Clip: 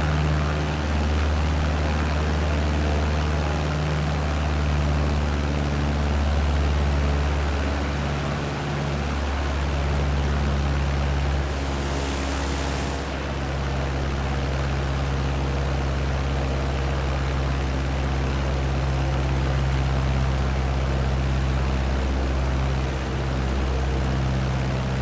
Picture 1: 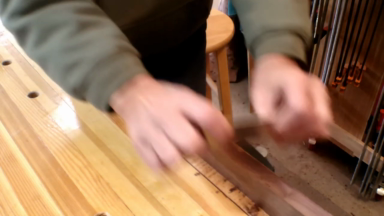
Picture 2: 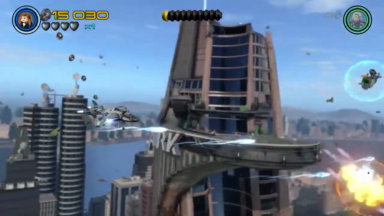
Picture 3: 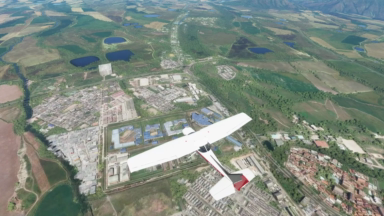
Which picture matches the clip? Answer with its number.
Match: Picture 3